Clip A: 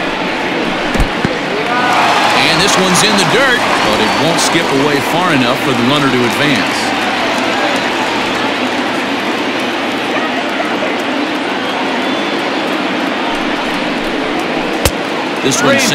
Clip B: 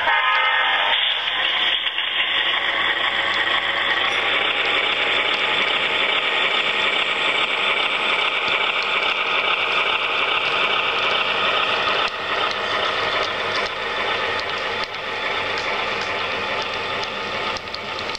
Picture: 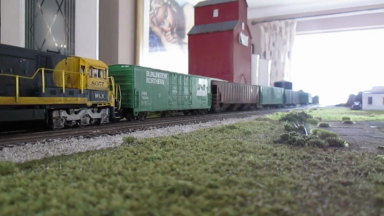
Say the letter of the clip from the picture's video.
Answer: B